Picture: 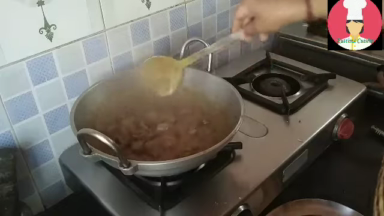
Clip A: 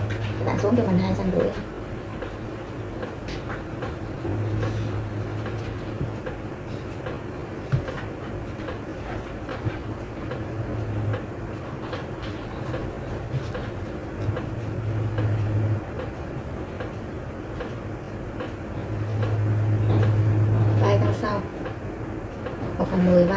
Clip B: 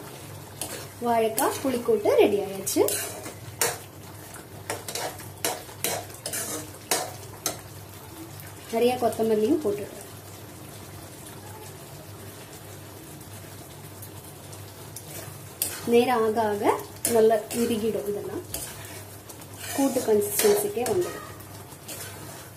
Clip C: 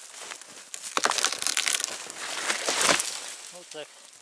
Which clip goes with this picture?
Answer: B